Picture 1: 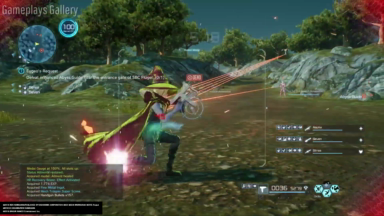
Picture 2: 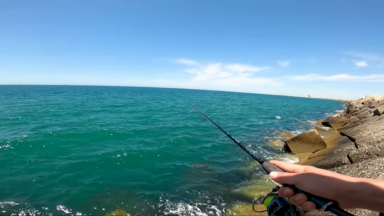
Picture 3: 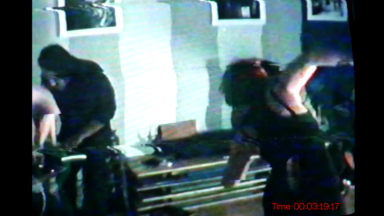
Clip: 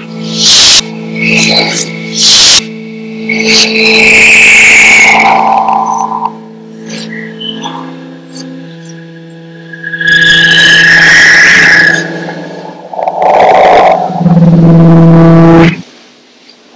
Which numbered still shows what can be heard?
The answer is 3